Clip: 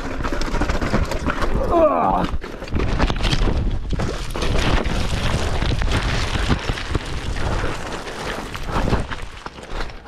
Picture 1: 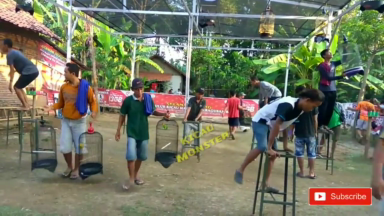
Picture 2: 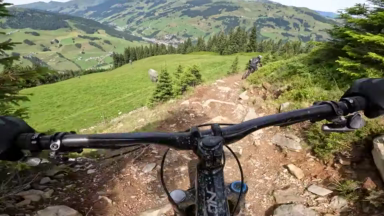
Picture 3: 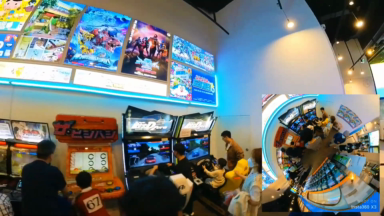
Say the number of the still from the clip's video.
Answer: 2